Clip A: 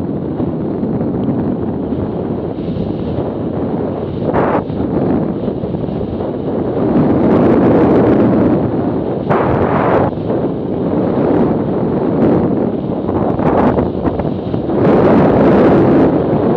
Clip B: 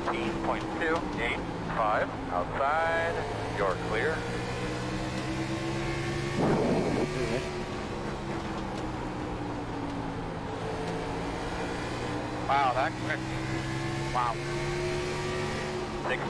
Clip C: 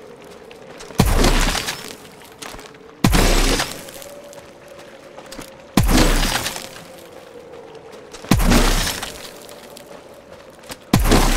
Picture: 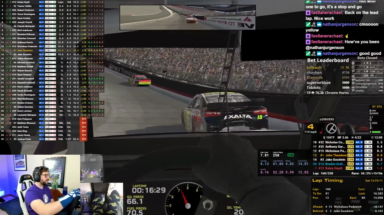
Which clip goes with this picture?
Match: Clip B